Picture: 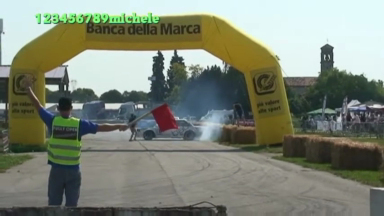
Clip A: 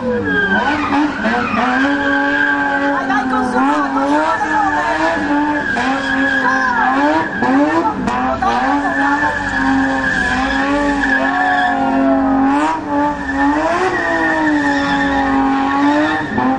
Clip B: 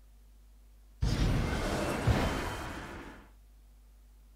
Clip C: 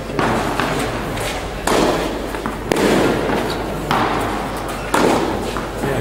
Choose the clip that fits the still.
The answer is A